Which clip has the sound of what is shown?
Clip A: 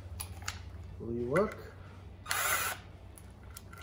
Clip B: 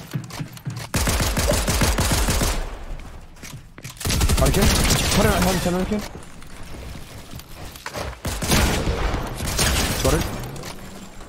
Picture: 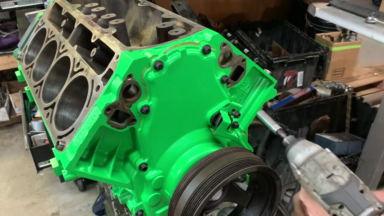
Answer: A